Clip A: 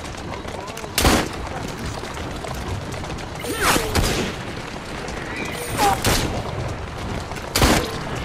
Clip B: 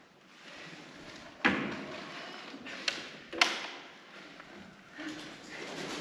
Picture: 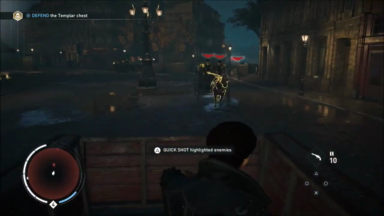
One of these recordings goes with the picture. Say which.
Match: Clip A